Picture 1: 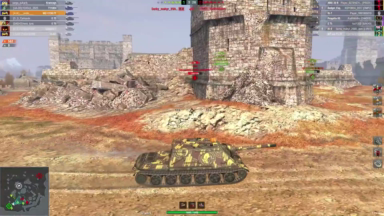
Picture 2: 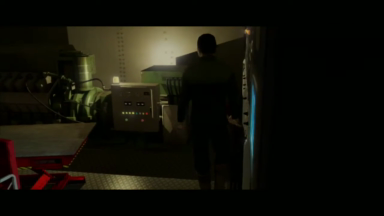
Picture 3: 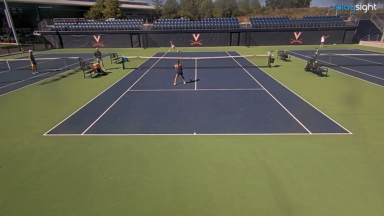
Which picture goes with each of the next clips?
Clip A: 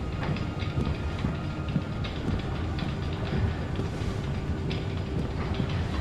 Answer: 2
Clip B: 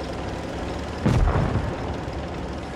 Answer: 1